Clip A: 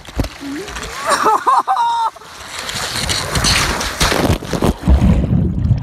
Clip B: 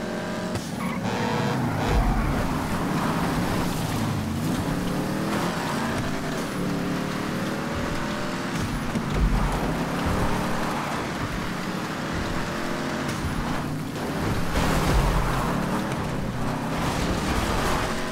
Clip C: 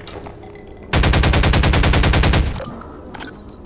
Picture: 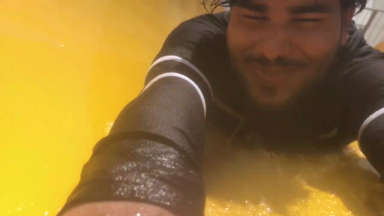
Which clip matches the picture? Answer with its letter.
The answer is A